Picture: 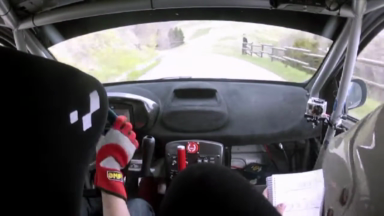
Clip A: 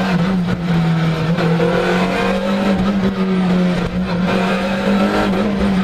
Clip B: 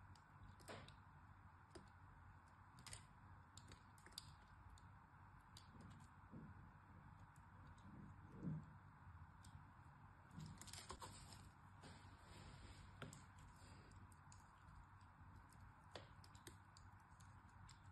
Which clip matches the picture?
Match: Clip A